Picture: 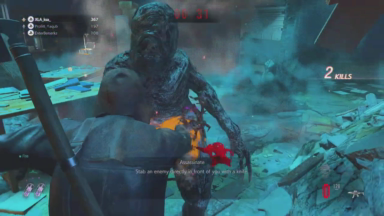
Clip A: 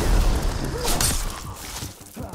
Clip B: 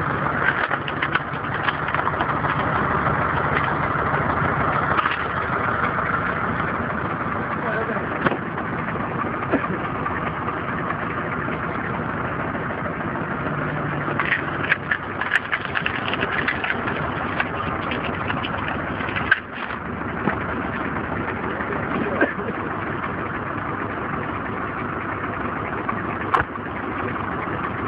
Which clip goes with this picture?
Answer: A